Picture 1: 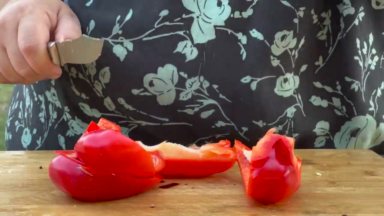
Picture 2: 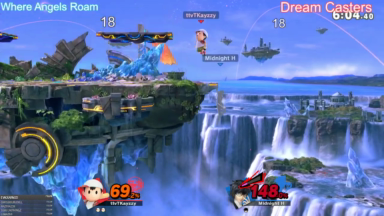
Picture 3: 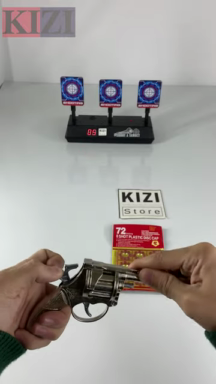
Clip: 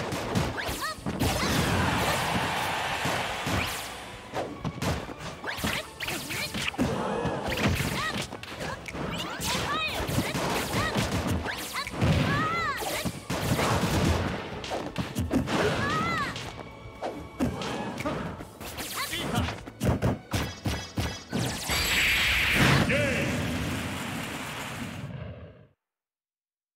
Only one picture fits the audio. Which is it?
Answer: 2